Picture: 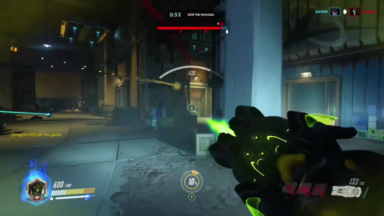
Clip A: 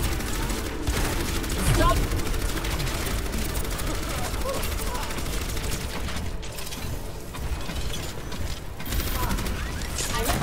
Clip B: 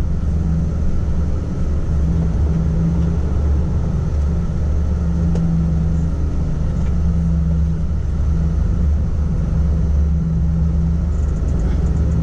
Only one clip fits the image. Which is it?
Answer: A